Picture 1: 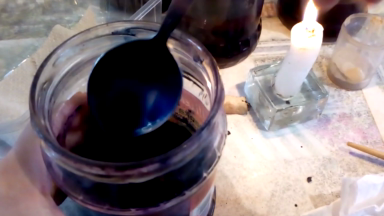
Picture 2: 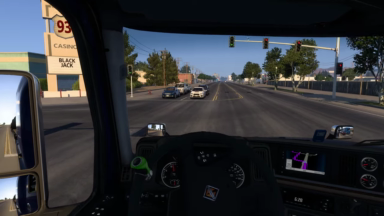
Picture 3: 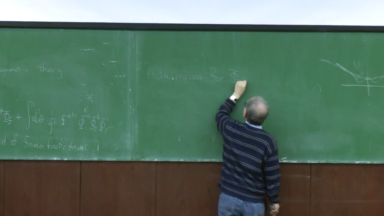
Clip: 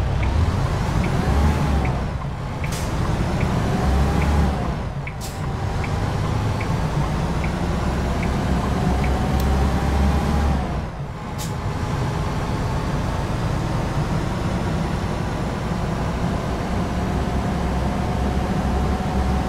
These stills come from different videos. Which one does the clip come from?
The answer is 2